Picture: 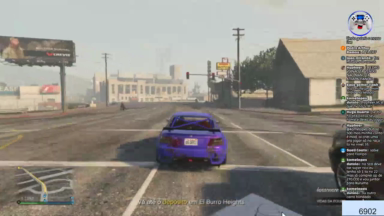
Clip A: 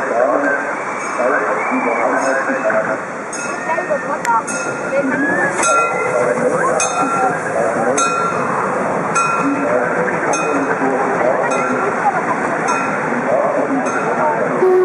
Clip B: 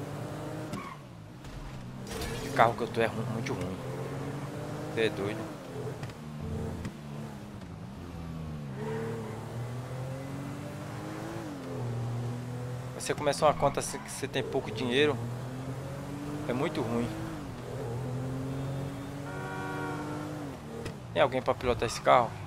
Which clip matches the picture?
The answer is B